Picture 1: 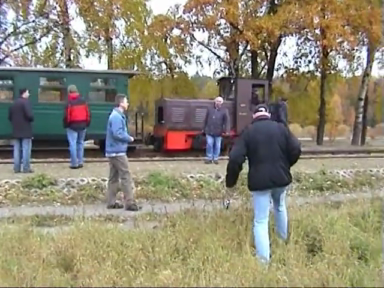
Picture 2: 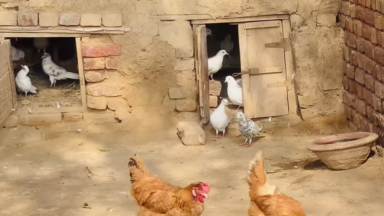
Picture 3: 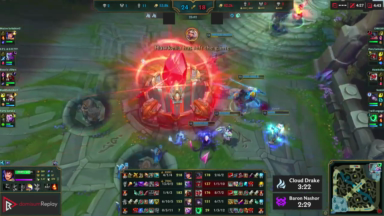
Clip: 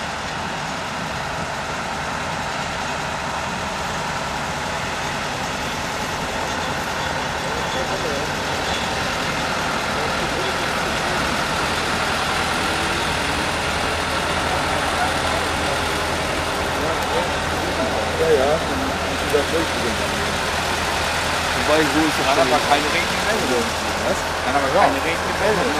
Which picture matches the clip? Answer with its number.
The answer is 1